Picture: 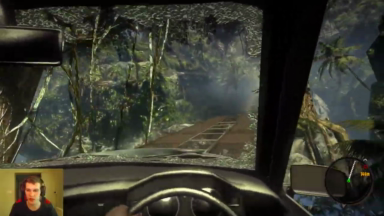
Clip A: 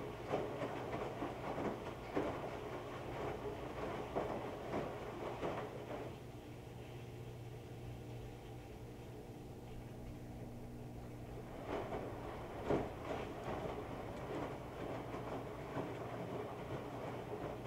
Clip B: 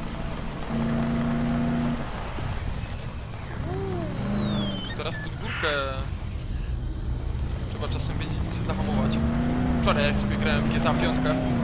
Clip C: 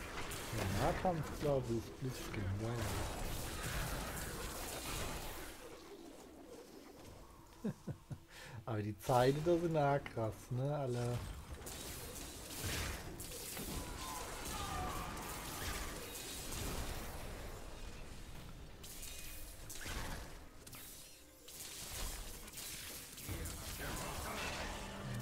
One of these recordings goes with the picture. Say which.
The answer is B